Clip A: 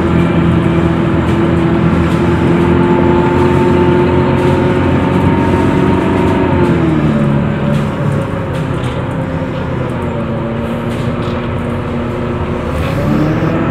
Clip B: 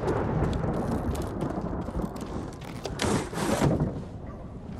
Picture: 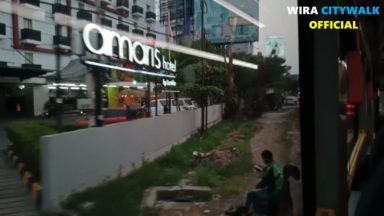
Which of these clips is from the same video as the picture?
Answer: A